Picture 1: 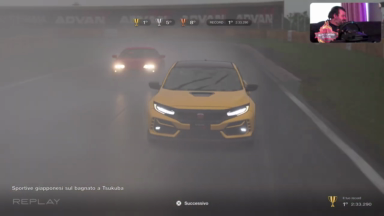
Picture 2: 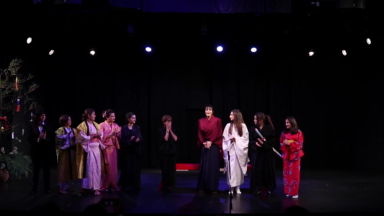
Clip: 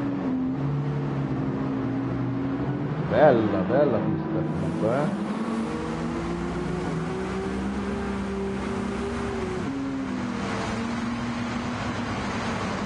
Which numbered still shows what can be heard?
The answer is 1